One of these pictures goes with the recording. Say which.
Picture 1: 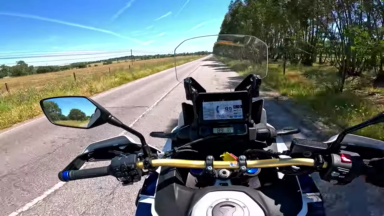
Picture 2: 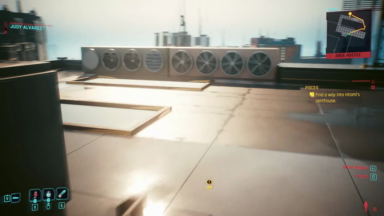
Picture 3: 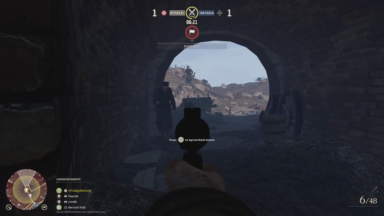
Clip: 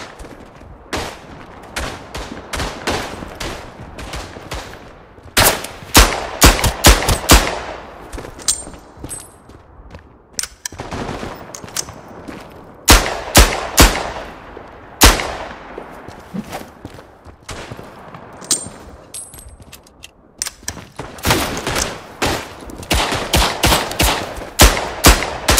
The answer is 3